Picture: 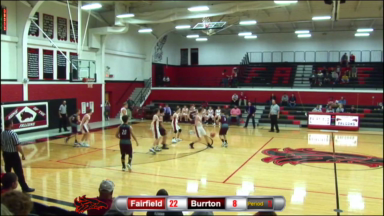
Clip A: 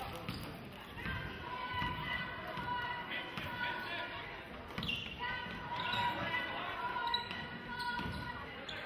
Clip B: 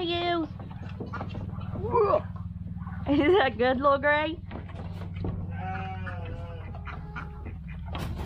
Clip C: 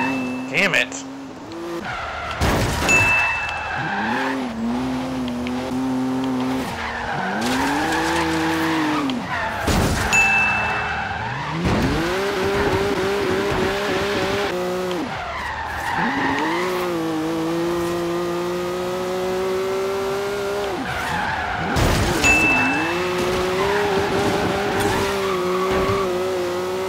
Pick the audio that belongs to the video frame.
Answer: A